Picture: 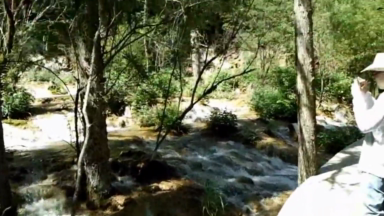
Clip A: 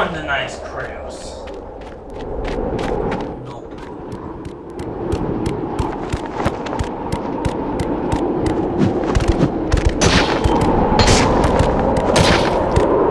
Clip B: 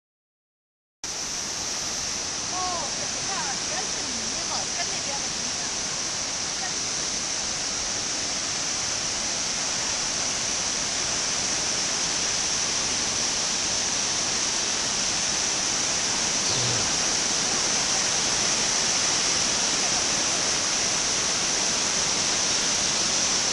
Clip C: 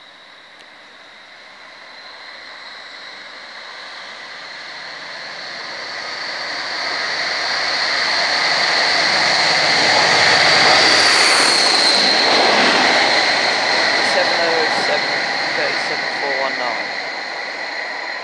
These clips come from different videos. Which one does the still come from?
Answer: B